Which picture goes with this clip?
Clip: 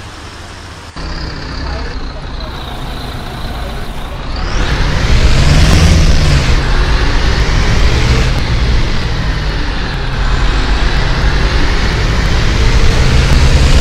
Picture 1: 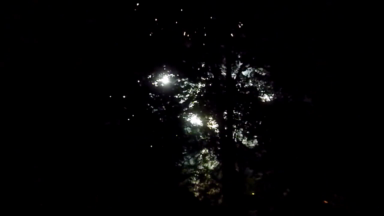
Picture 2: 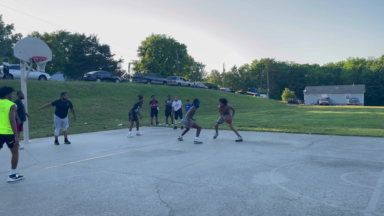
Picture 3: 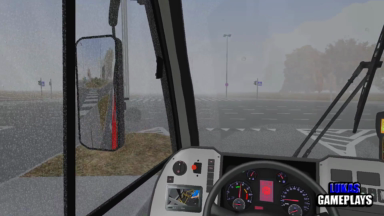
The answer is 3